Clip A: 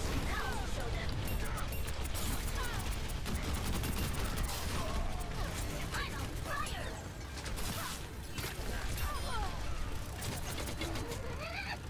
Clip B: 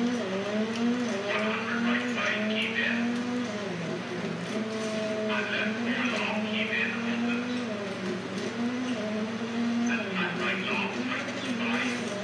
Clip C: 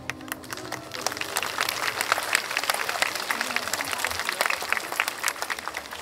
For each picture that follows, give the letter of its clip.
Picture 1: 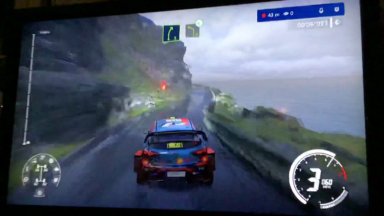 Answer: B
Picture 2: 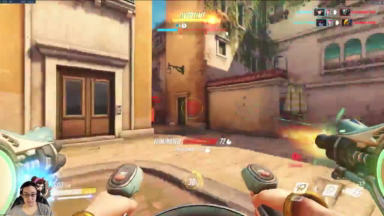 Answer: A